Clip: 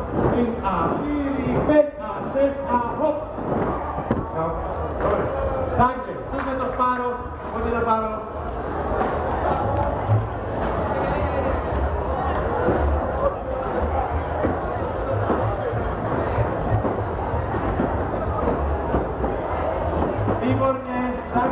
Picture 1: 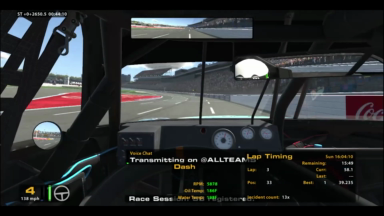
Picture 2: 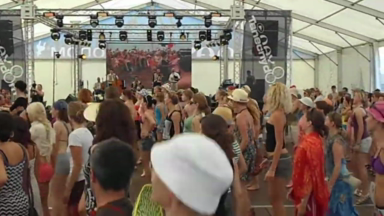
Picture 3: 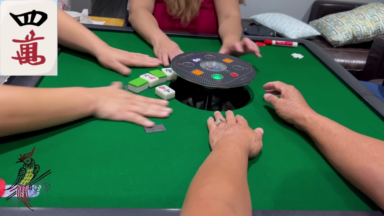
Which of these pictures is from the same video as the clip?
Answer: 2